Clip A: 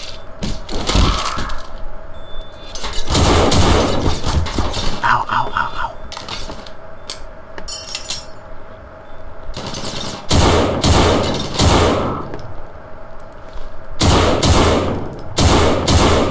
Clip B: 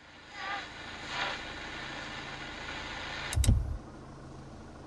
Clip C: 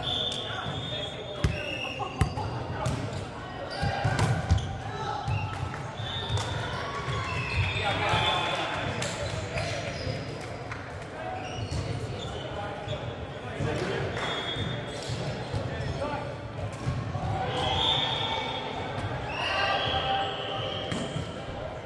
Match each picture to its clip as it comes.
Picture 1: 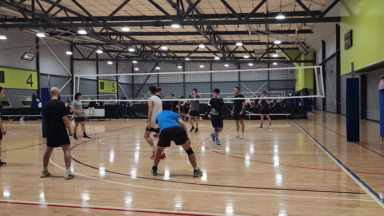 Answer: C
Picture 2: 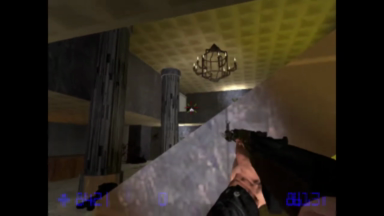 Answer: A